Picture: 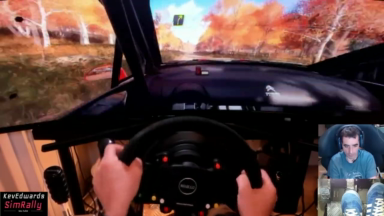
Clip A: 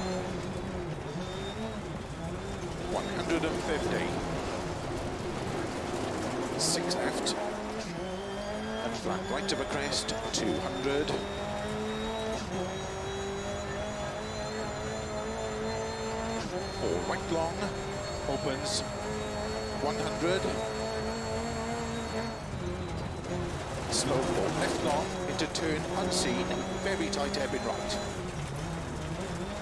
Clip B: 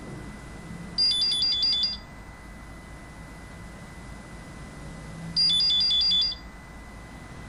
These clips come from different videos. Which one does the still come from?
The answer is A